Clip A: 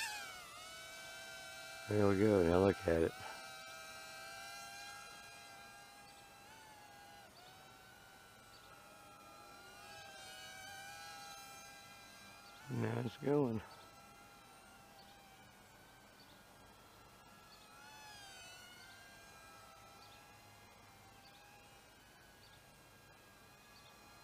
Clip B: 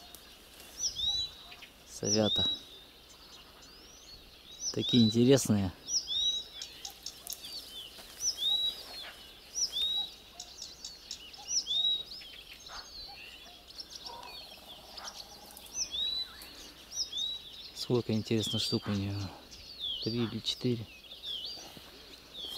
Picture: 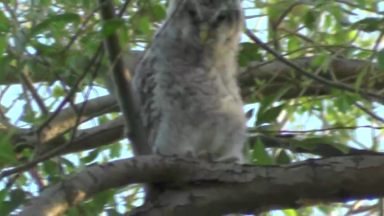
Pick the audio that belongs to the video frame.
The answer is B